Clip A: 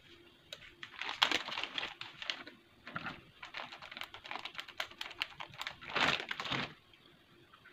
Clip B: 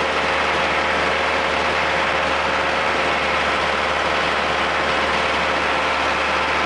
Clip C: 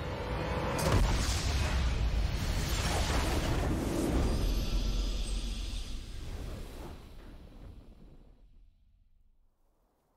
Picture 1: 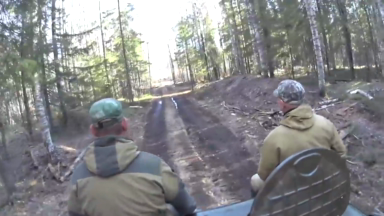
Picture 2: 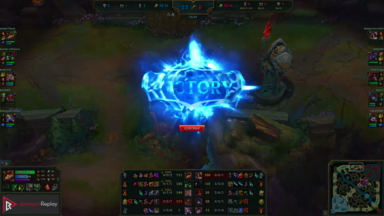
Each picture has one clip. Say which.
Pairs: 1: B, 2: C